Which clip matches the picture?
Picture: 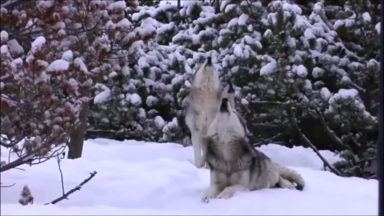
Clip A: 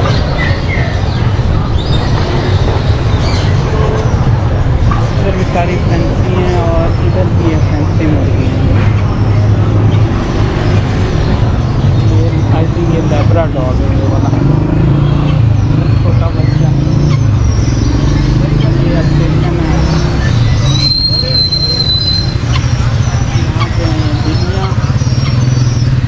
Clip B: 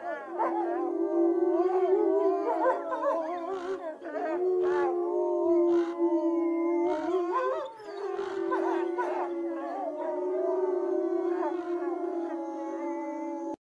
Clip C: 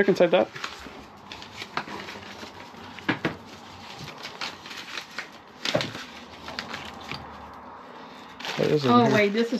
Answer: B